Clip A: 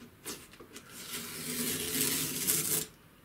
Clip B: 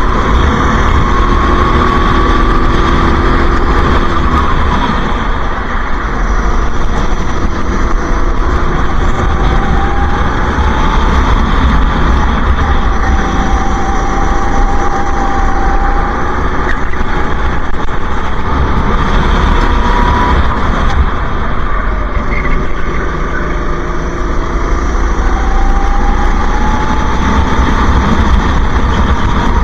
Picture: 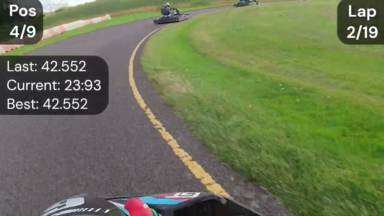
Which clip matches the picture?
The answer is B